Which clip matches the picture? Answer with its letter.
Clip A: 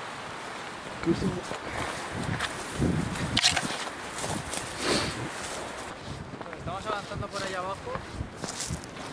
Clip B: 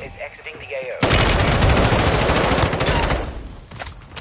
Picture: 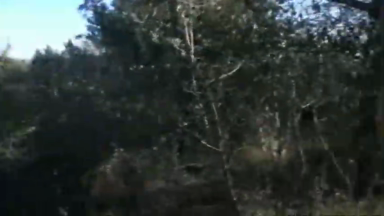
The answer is A